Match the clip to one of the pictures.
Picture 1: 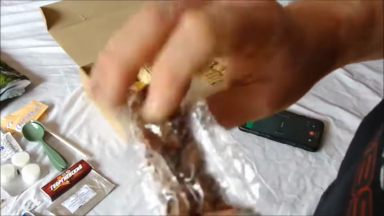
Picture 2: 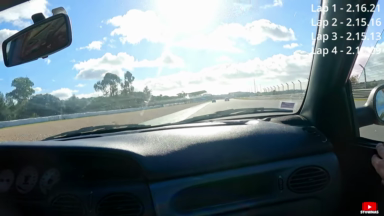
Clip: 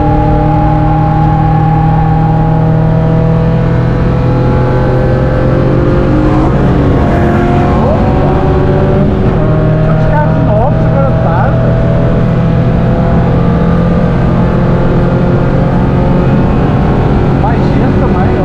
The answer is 2